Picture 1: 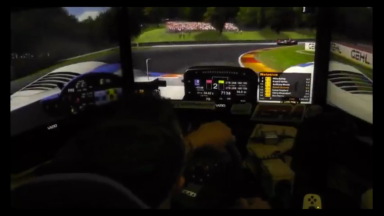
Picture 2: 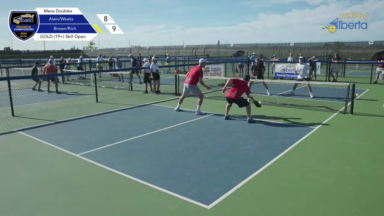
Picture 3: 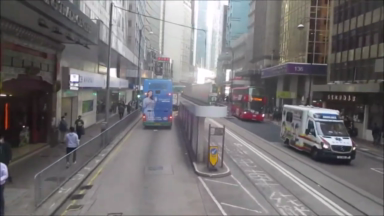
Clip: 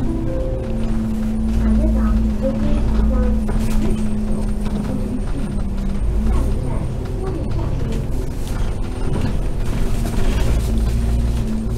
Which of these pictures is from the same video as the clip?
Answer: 3